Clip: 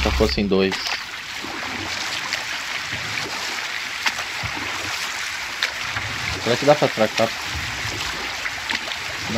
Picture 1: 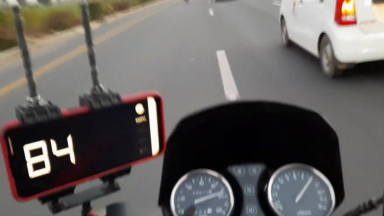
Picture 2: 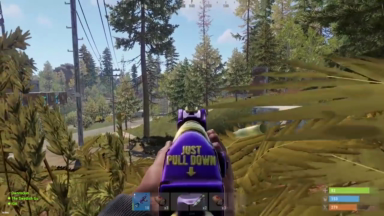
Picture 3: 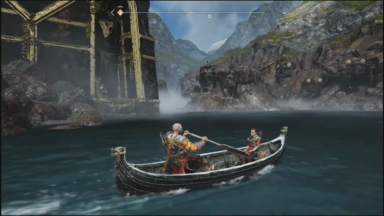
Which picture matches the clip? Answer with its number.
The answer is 3